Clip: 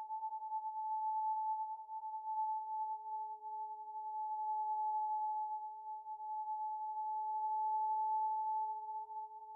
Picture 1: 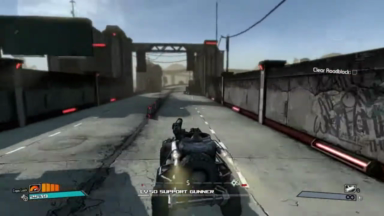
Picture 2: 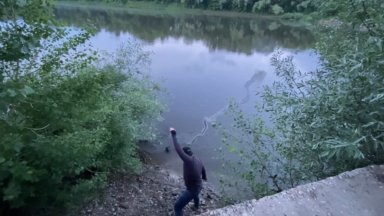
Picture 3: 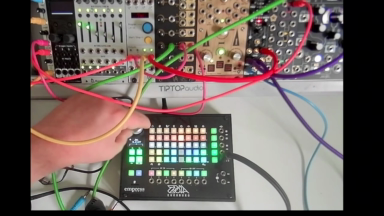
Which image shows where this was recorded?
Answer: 3